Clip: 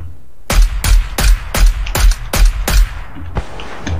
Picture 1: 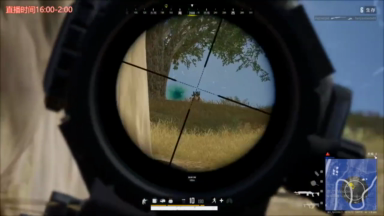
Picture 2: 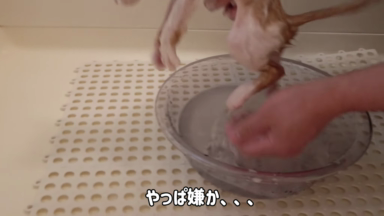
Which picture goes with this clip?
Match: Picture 1